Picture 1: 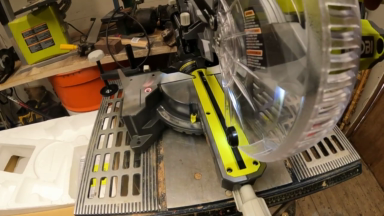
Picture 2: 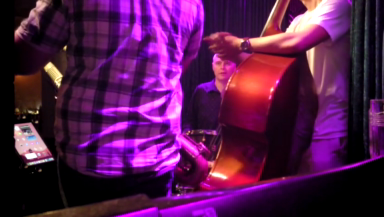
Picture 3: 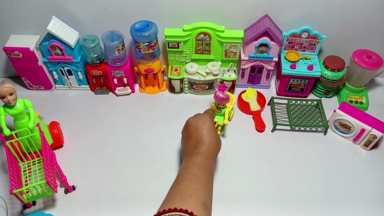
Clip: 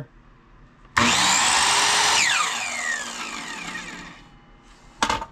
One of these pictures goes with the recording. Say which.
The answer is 1